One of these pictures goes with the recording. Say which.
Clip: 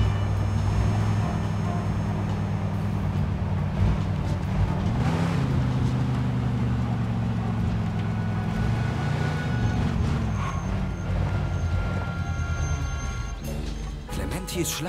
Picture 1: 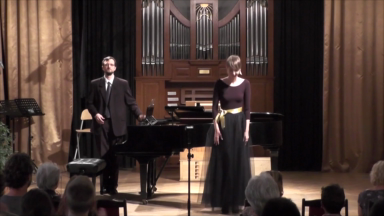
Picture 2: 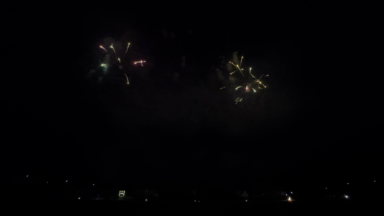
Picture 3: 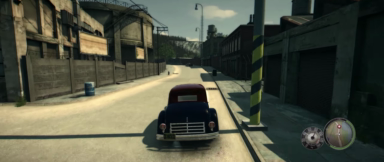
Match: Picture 3